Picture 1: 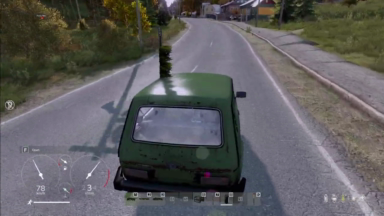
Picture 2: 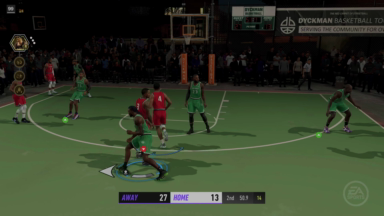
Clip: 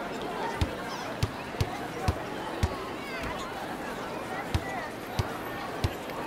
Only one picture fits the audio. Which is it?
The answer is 2